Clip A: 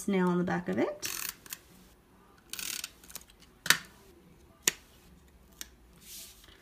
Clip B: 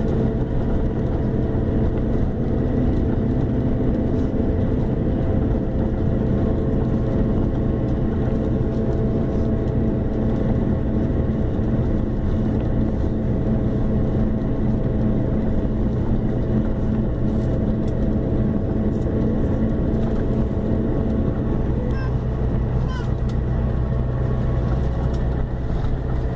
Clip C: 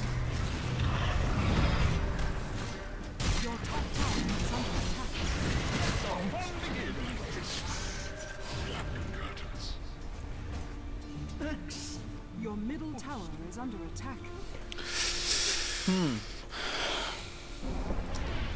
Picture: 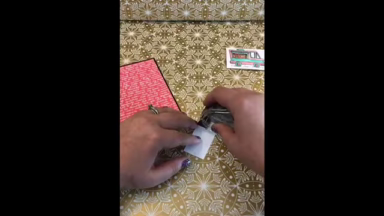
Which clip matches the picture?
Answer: A